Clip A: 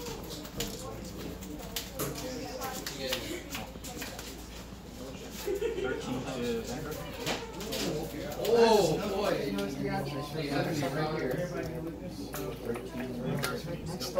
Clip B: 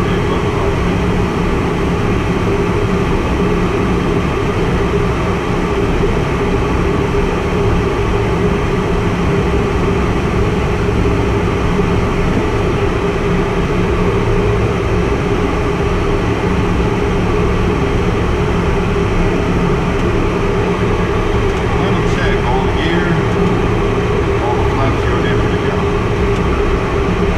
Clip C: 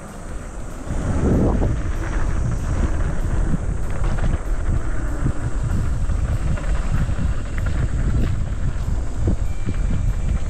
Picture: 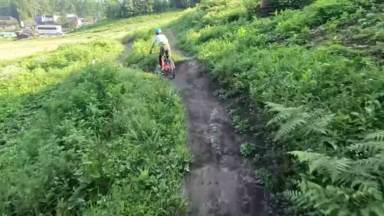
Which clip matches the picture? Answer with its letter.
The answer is C